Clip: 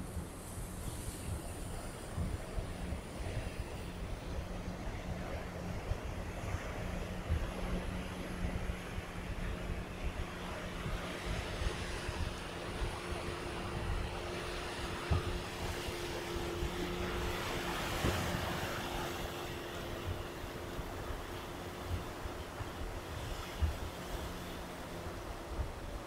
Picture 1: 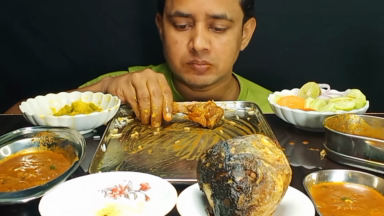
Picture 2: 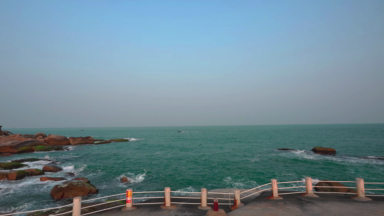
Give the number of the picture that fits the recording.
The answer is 2